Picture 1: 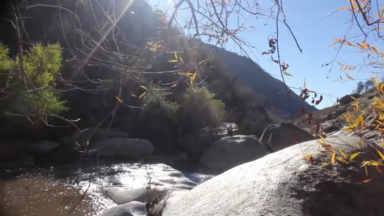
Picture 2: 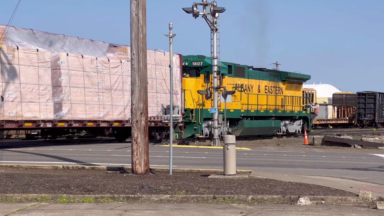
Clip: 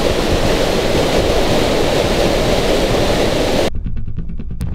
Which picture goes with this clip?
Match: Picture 1